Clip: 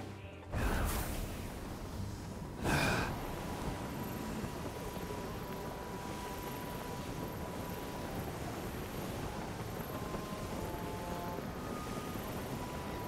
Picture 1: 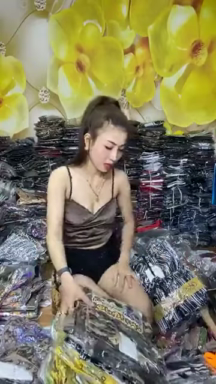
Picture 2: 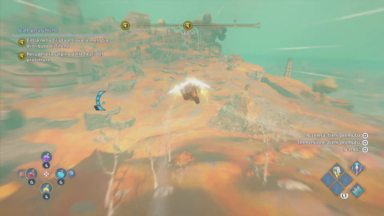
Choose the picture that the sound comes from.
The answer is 2